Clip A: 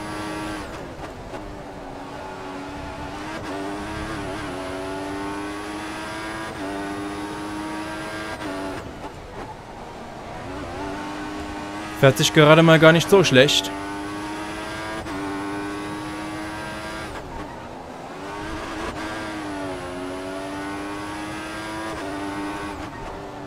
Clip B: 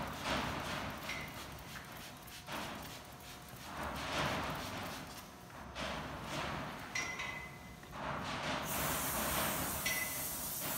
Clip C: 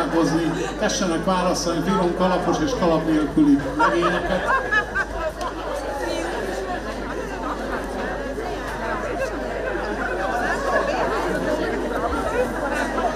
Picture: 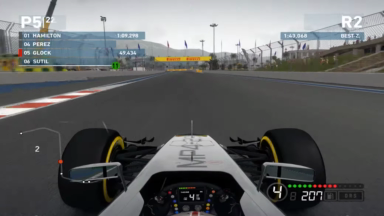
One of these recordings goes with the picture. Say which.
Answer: A